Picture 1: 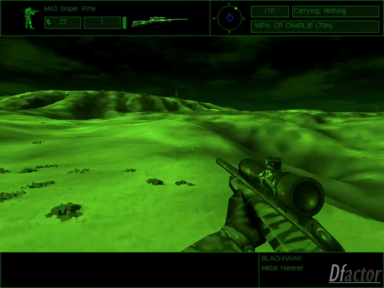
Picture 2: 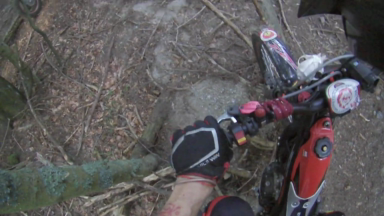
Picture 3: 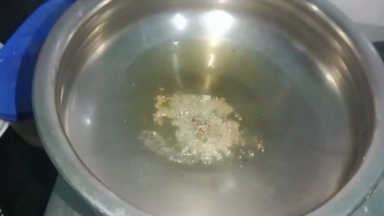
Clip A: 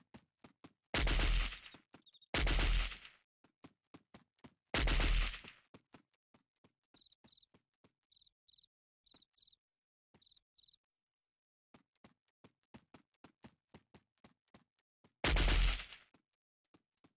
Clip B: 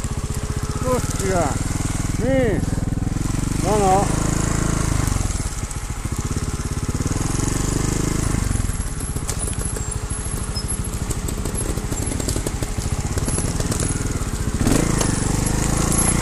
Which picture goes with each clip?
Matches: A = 1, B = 2